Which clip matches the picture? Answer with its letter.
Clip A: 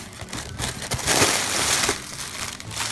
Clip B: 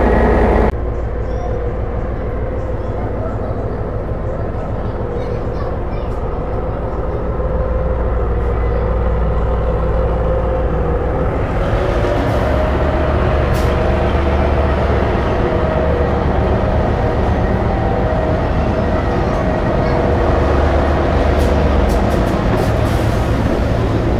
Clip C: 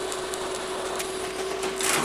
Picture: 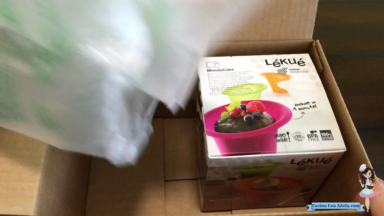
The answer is A